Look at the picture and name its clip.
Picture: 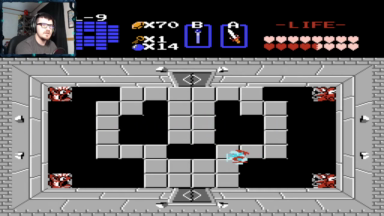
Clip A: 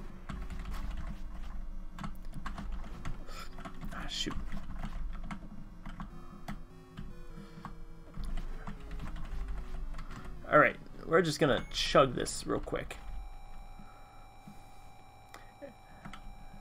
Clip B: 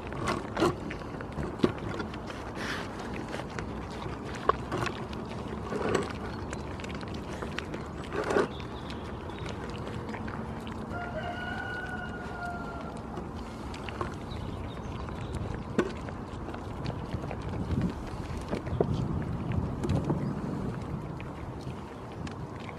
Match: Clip A